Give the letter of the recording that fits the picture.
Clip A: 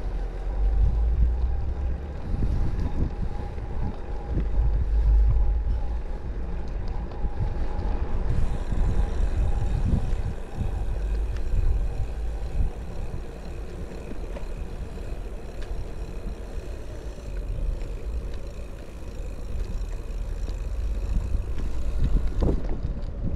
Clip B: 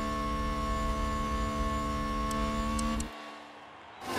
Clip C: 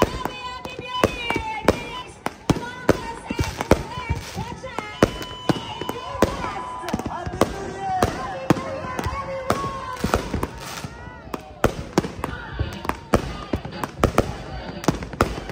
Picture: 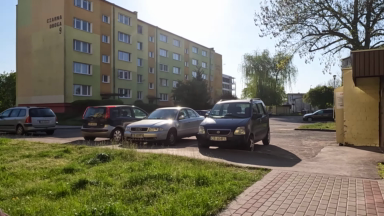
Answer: A